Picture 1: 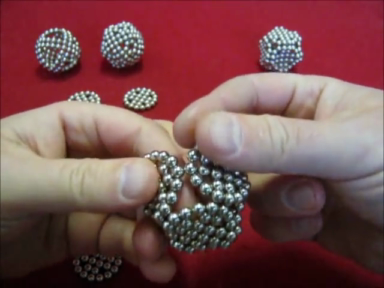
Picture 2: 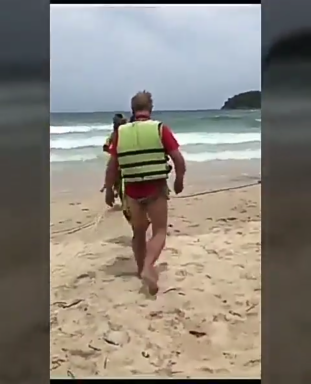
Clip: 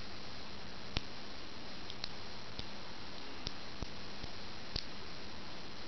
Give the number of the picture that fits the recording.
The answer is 1